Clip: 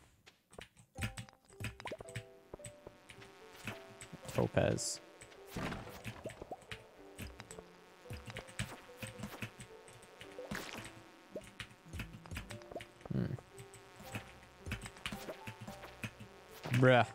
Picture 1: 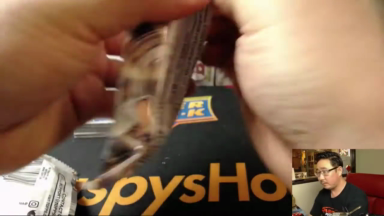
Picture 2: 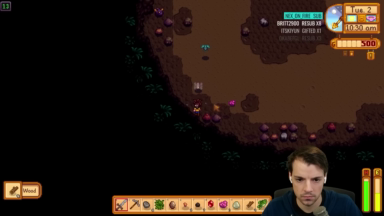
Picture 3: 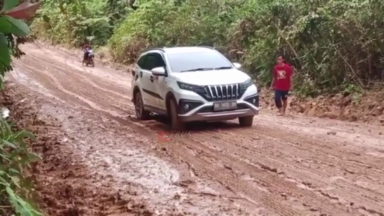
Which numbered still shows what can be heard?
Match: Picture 2